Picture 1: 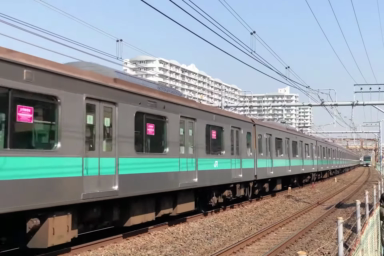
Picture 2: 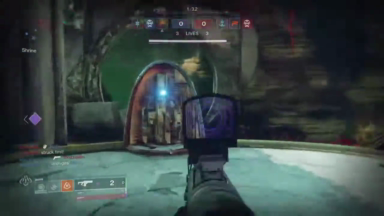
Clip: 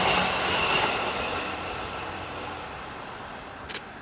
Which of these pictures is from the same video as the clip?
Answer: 1